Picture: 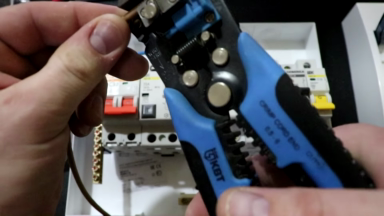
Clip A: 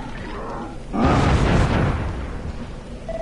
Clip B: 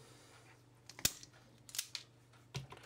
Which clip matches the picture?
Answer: B